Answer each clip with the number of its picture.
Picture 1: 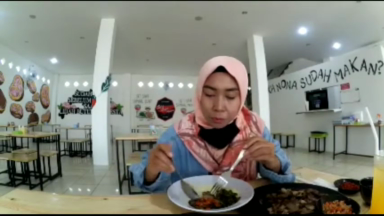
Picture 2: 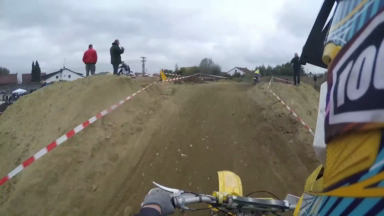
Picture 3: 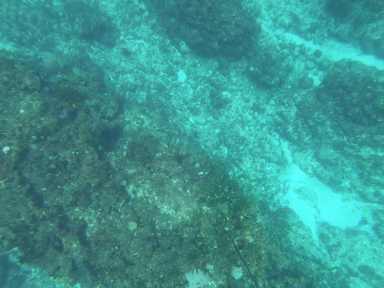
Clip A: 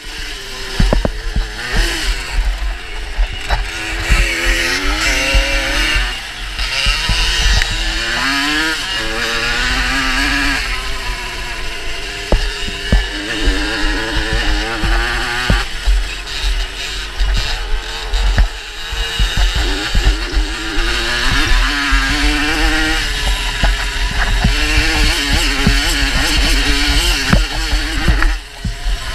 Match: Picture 2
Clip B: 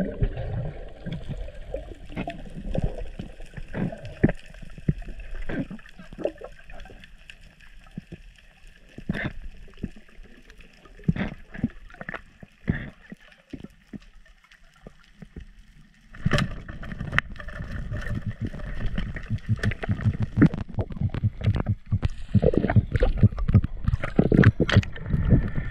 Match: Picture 3